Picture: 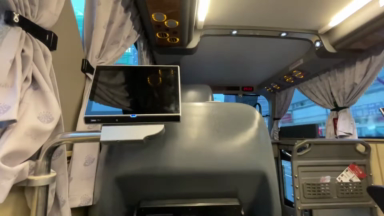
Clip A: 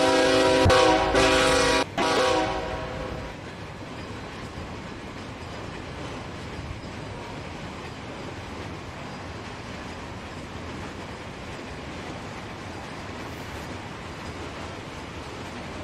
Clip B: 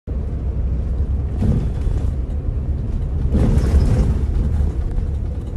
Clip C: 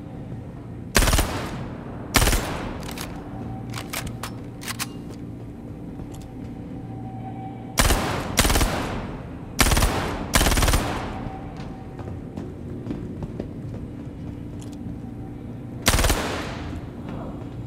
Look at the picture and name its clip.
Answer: B